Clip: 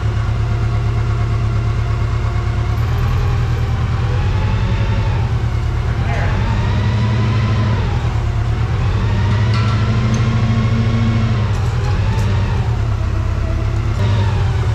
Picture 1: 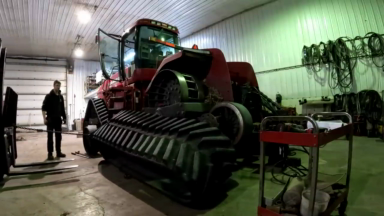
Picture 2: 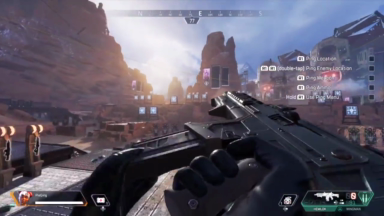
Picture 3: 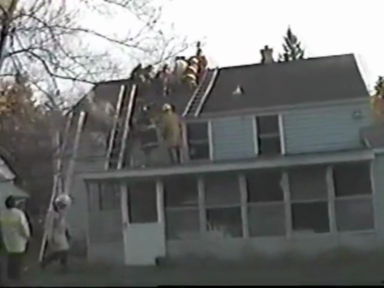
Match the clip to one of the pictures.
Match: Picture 1